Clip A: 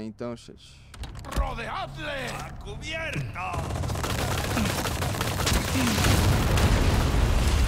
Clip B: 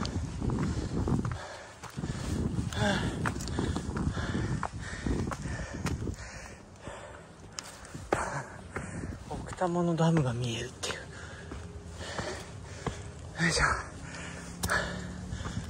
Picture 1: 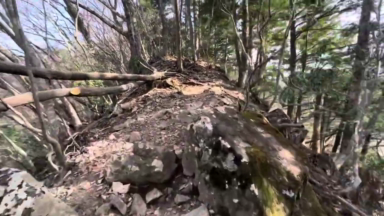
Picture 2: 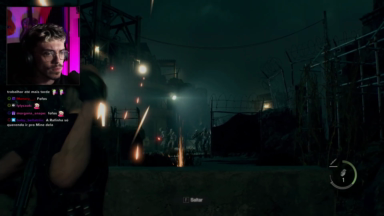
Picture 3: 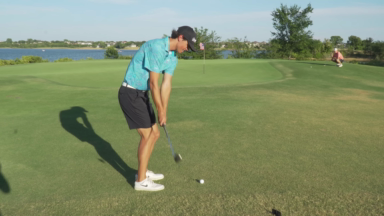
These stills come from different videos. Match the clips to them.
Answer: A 2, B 1